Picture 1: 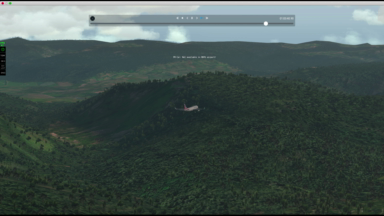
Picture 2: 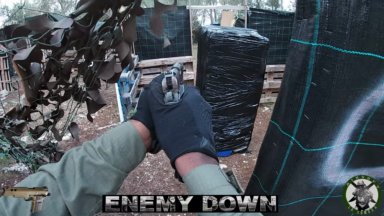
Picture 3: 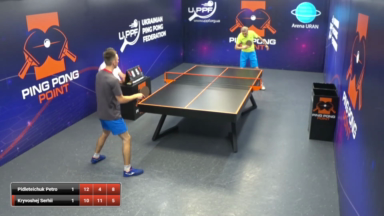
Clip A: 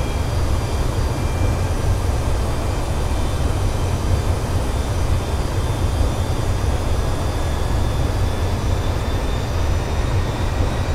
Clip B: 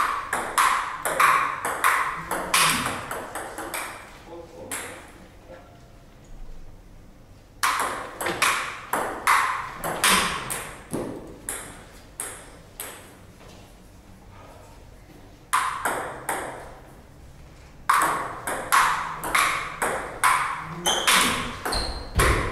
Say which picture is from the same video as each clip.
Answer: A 1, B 3